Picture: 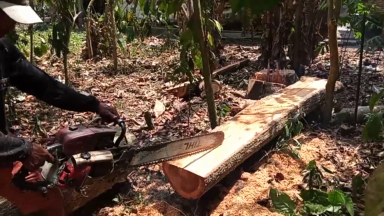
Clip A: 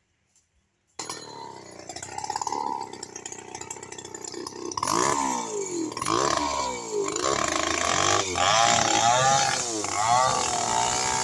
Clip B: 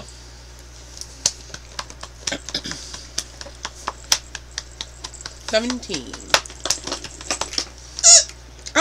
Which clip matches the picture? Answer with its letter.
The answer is A